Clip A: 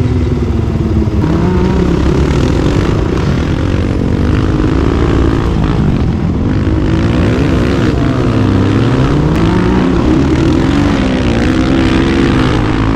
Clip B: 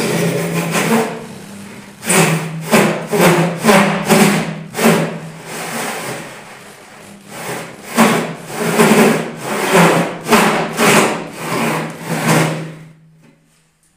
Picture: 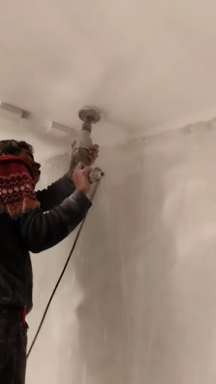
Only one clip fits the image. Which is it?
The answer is B